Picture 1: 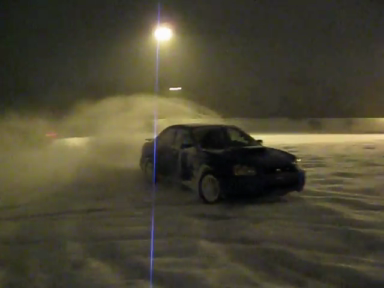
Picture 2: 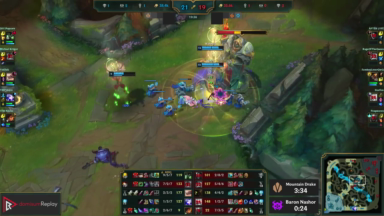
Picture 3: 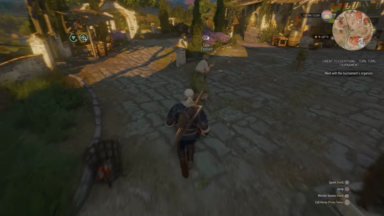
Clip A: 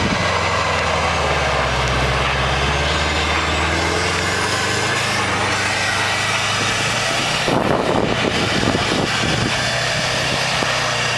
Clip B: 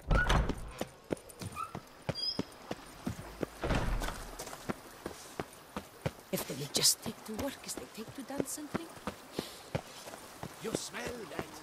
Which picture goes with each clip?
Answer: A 1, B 3